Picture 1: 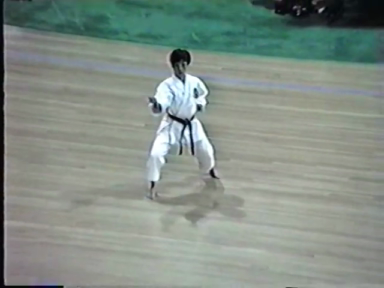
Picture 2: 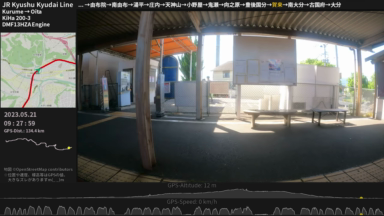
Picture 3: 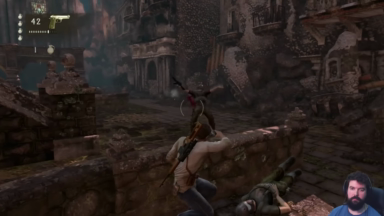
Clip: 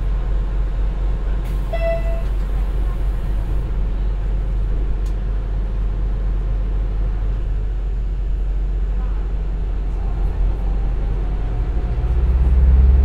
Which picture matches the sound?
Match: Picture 2